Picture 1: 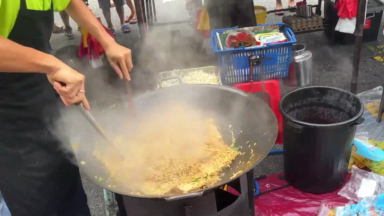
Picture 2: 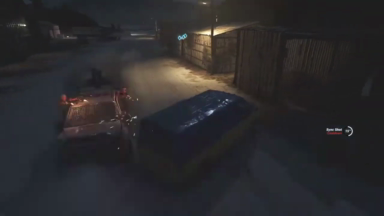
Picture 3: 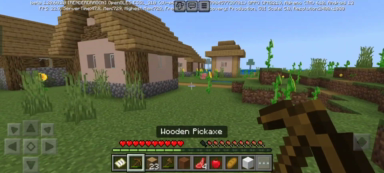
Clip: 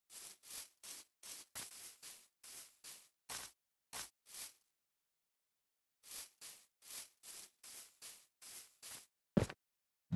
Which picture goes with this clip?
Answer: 3